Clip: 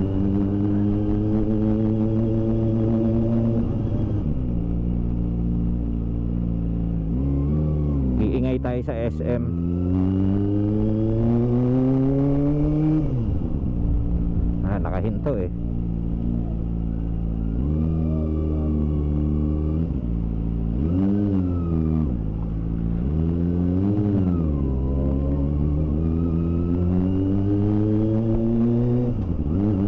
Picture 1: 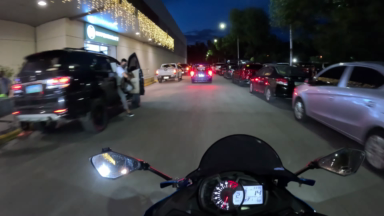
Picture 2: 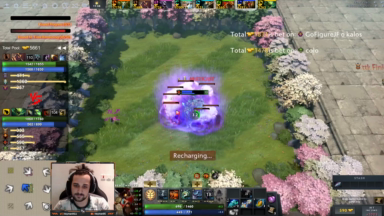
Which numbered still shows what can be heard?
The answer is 1